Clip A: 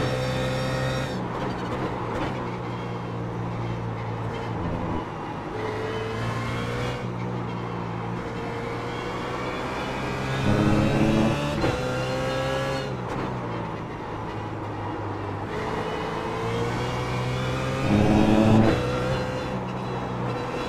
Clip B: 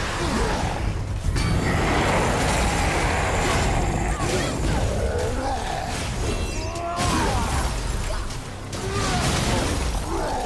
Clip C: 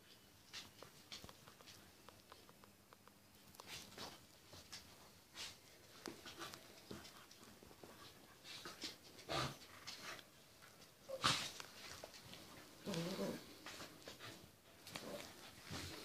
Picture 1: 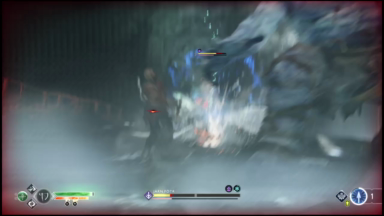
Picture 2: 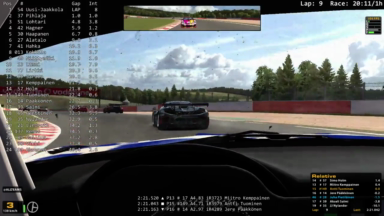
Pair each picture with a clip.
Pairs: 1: B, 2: A